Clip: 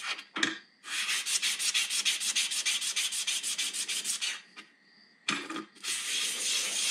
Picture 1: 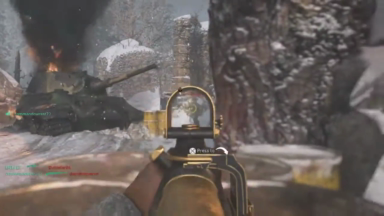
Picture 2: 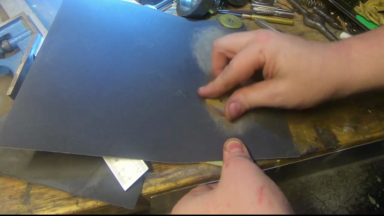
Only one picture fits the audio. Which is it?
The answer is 2